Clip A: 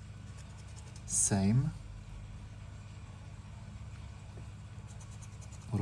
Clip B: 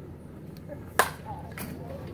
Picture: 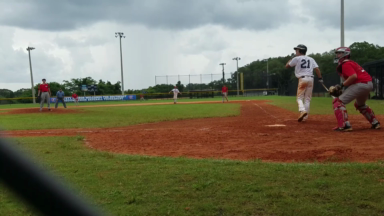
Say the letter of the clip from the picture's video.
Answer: B